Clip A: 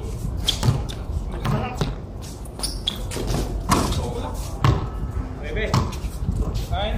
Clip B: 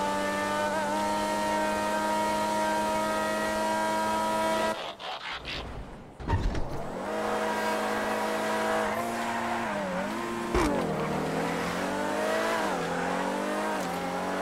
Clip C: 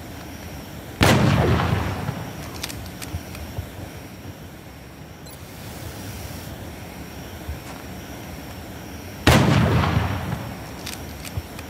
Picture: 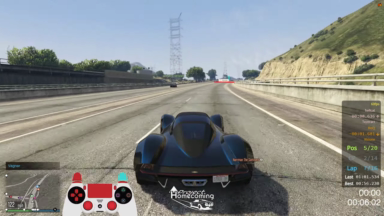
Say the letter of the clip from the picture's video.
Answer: B